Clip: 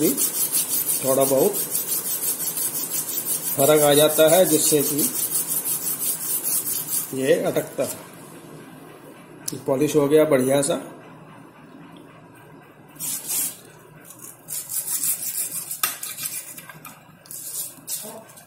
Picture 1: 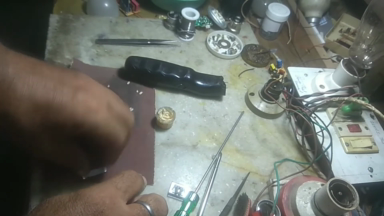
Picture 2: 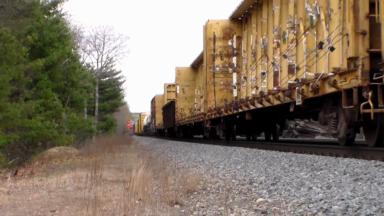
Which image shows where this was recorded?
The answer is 1